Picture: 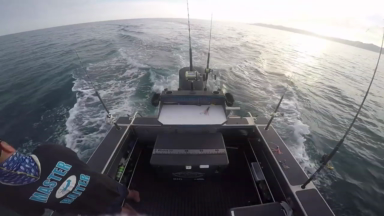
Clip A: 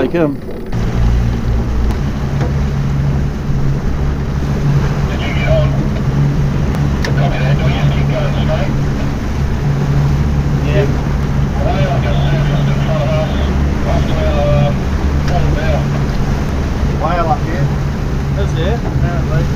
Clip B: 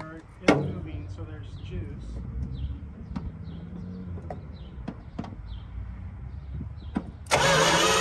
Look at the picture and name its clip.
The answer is A